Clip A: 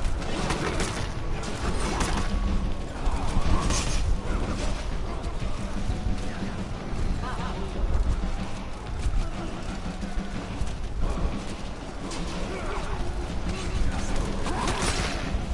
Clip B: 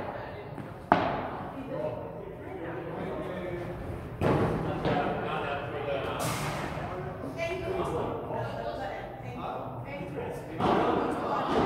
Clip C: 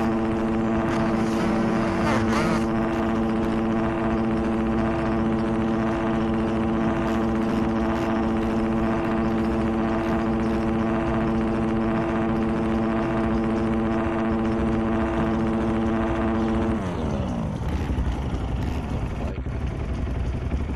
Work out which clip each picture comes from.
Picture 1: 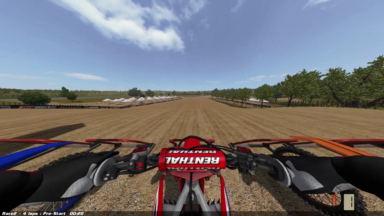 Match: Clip C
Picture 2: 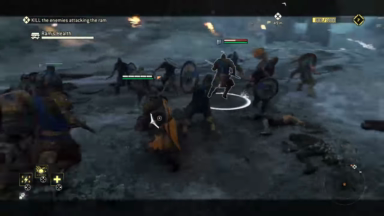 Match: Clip A